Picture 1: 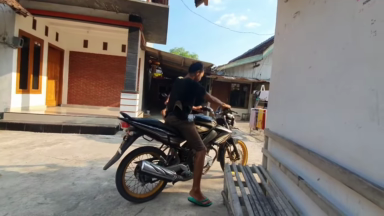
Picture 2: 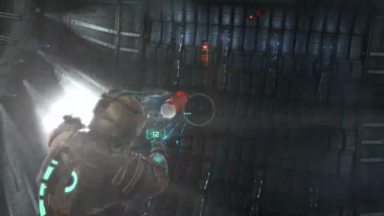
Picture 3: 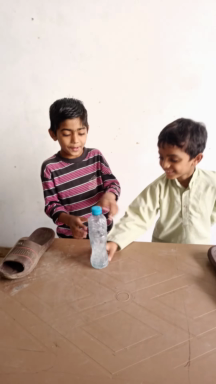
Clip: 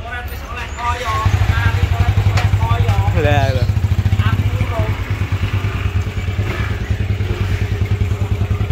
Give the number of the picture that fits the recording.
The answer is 1